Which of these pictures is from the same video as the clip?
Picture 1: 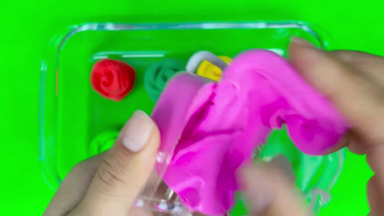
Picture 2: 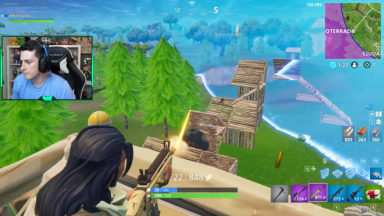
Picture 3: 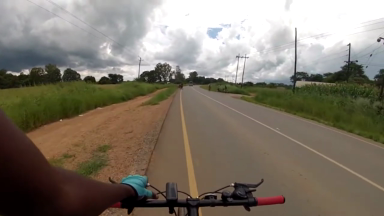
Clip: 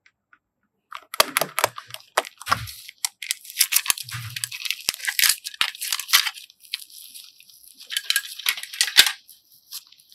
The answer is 1